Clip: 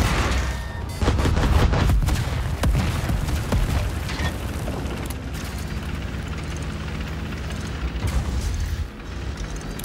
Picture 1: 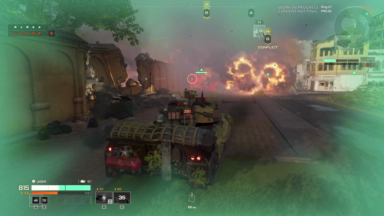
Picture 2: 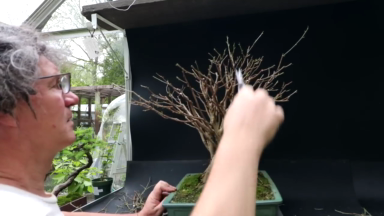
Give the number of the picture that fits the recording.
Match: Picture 1